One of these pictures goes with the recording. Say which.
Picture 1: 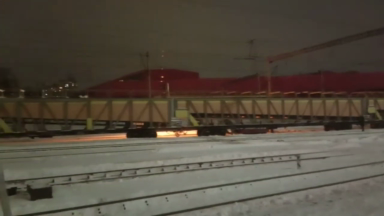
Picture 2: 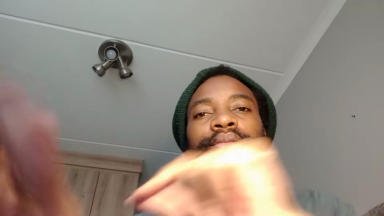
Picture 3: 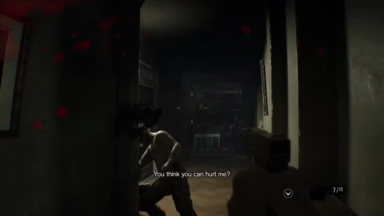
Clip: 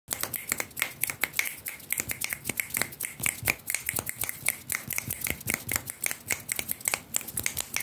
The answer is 2